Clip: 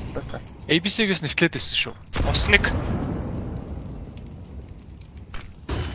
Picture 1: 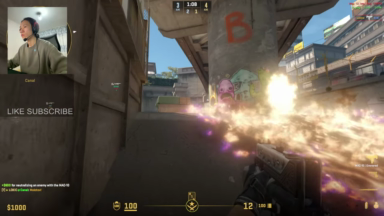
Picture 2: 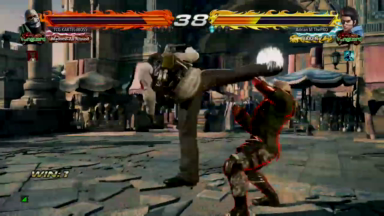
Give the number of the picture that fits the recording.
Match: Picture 1